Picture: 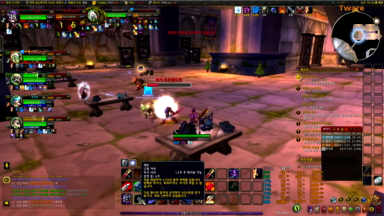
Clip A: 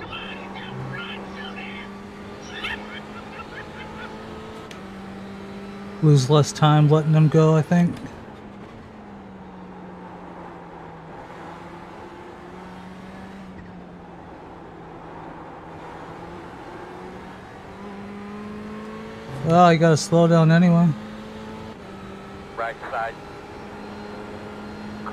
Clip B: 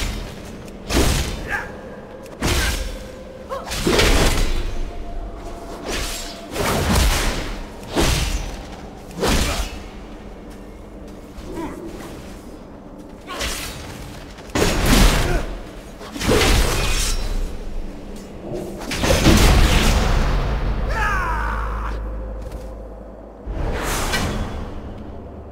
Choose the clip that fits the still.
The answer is B